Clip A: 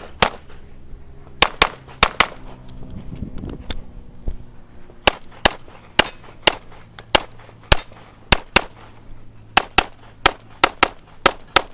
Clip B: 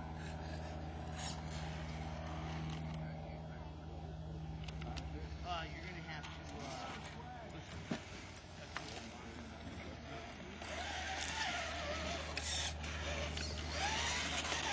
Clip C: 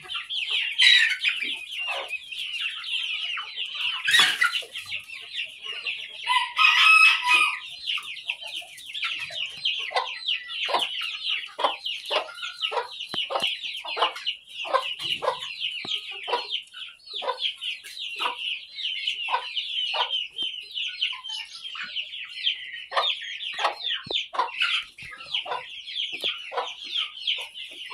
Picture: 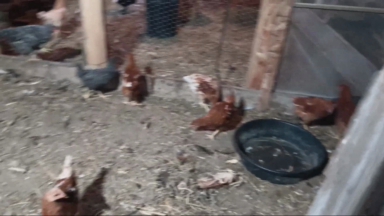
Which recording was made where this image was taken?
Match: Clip C